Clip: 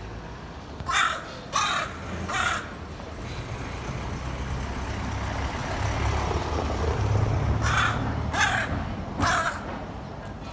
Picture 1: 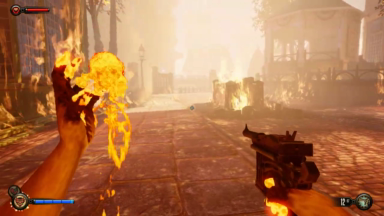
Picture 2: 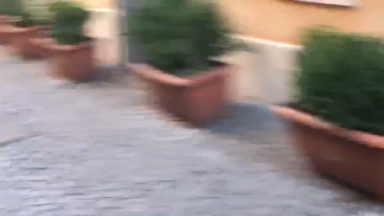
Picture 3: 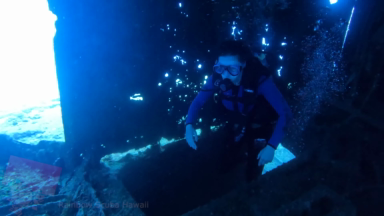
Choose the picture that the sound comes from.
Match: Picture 2